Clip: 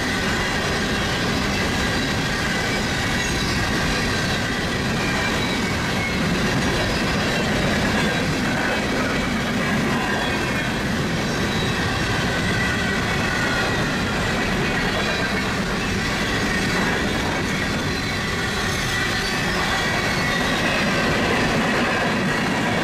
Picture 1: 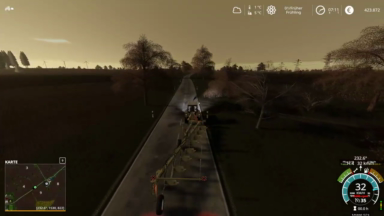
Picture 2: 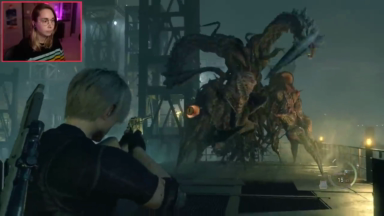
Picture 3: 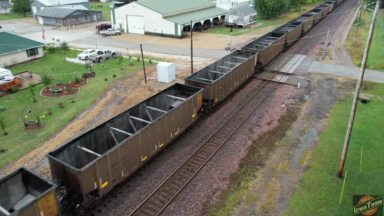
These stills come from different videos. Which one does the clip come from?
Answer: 3